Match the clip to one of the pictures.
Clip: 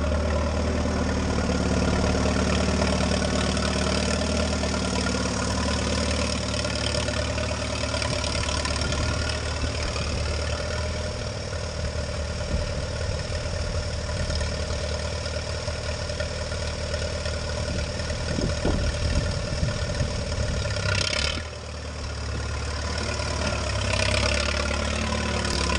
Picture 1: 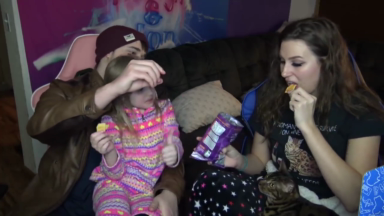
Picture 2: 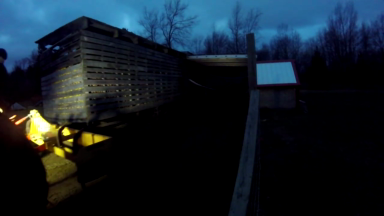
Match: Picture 2